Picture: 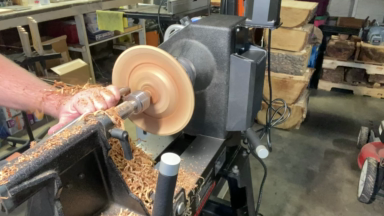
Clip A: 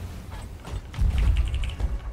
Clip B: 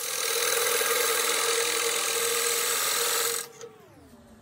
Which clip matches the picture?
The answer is B